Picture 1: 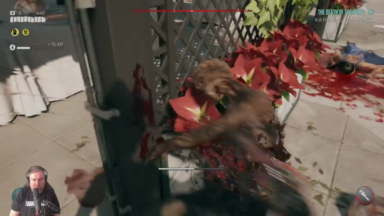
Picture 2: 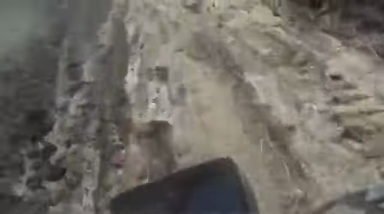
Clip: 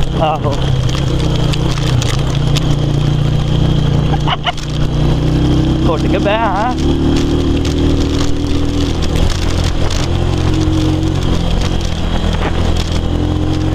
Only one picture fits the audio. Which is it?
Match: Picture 2